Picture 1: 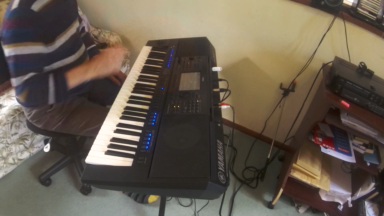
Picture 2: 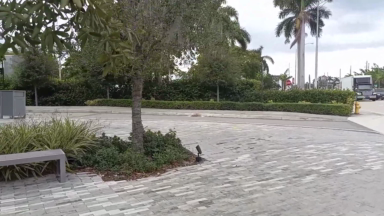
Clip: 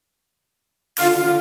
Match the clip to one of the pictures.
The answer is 1